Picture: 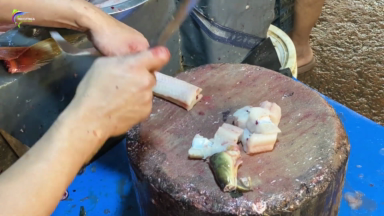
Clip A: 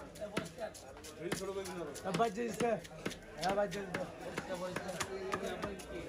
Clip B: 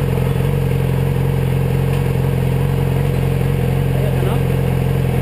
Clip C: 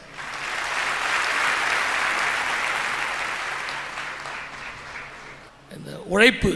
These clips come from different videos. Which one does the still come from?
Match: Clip A